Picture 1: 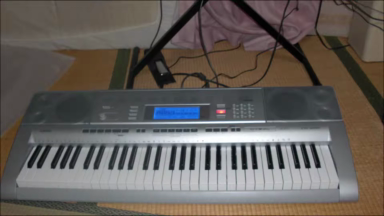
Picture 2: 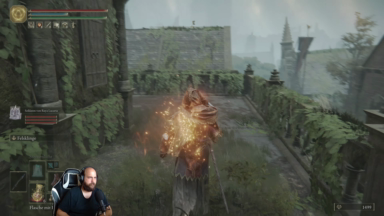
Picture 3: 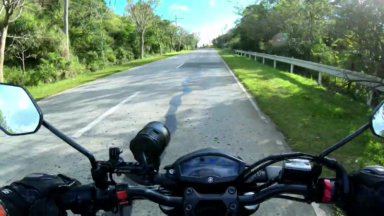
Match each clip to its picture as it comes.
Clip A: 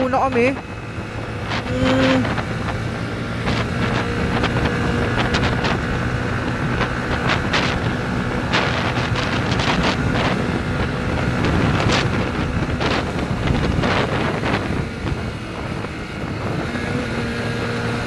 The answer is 3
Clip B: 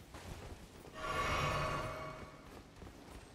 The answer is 2